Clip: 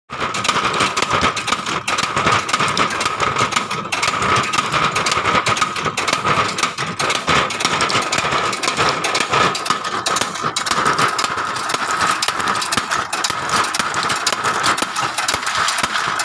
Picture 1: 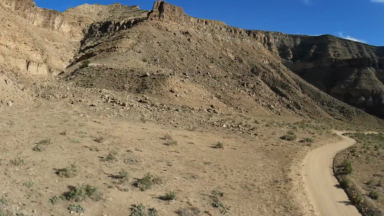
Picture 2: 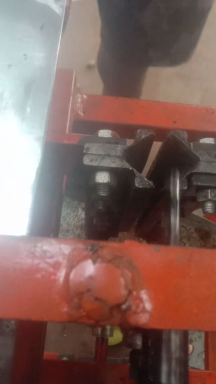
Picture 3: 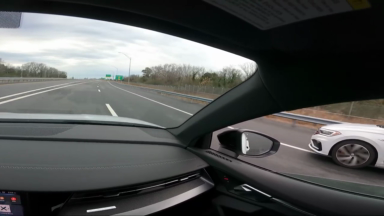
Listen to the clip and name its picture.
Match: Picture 2